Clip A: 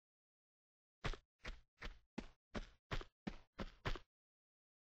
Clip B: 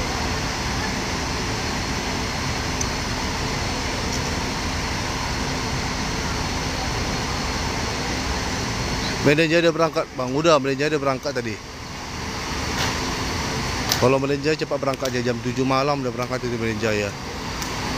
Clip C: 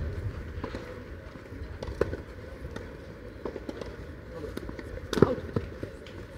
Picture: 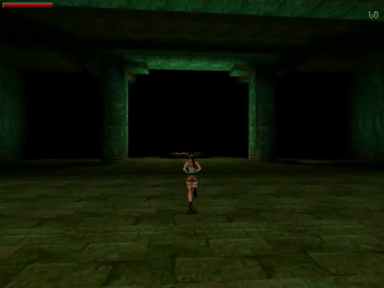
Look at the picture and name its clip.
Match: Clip A